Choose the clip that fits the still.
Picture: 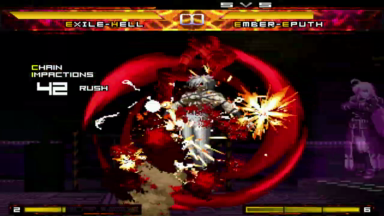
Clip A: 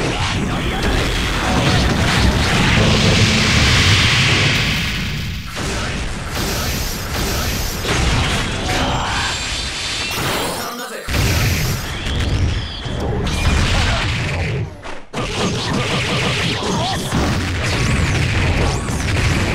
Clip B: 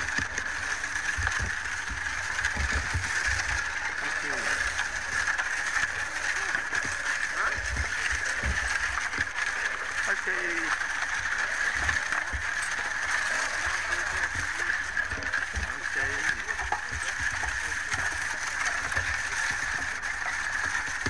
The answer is A